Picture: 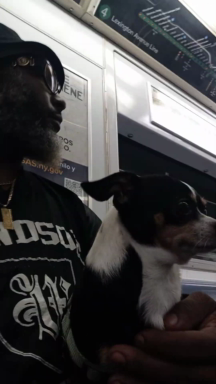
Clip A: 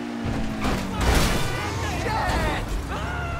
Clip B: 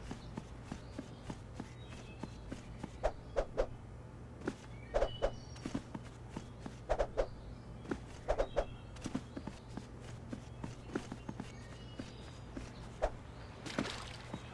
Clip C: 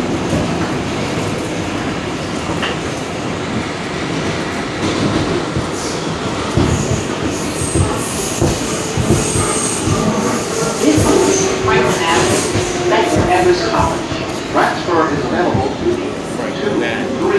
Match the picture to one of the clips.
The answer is C